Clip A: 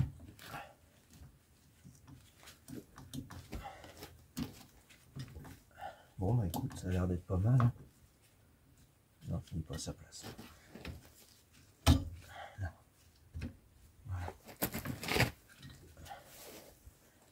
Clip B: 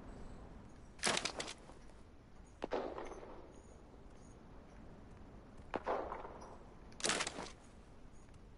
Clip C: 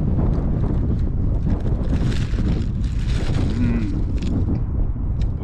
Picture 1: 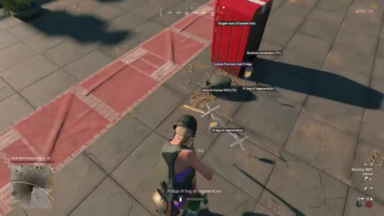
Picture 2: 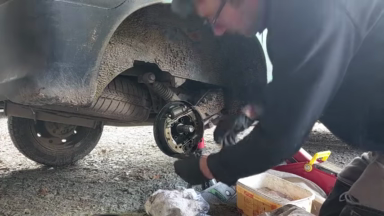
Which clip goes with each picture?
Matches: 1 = B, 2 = A